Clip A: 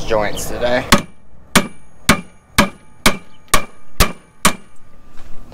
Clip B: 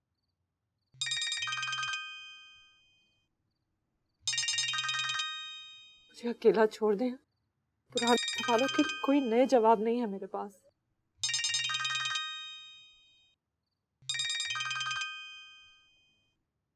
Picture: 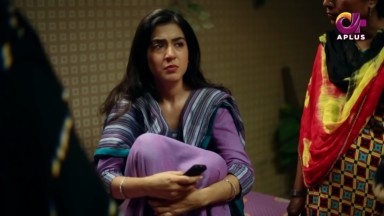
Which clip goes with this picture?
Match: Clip B